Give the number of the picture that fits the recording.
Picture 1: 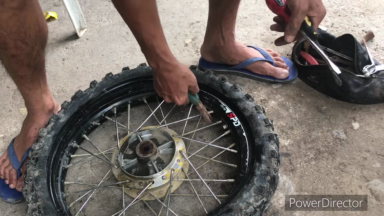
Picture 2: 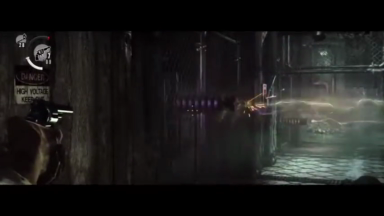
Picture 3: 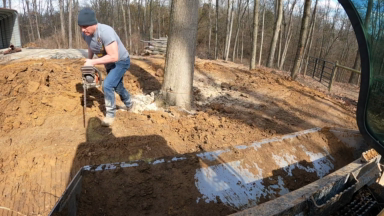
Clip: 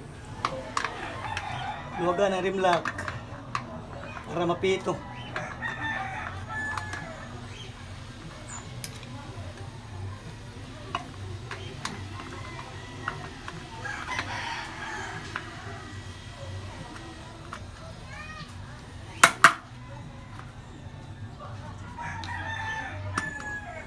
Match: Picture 1